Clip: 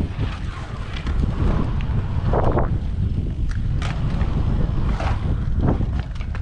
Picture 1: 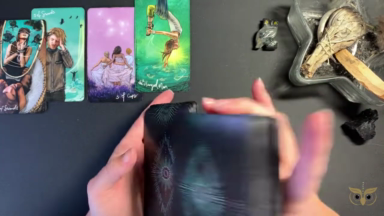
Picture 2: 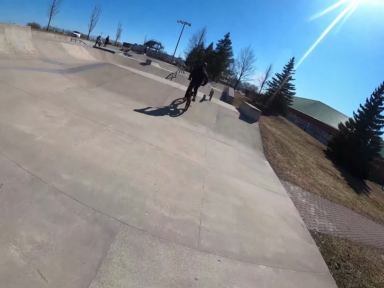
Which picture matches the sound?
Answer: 2